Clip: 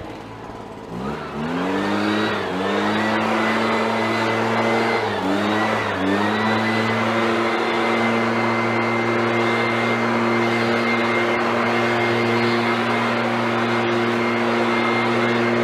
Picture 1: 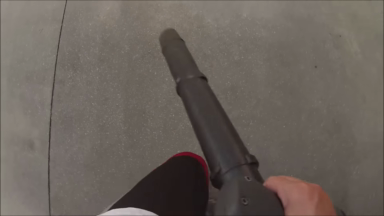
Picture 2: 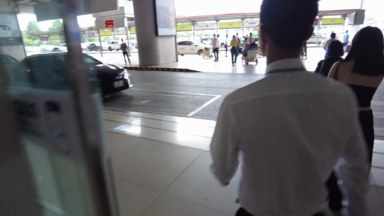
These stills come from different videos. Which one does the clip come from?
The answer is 1